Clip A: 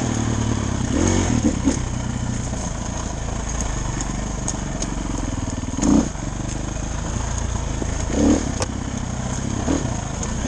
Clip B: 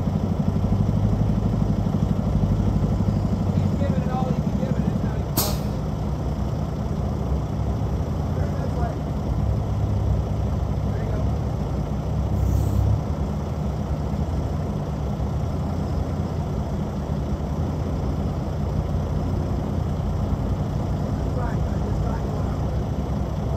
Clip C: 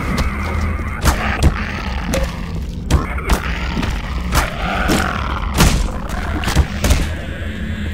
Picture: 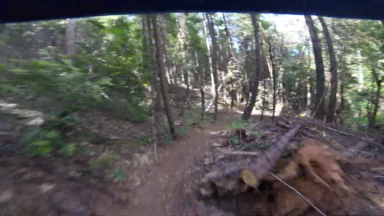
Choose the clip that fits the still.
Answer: A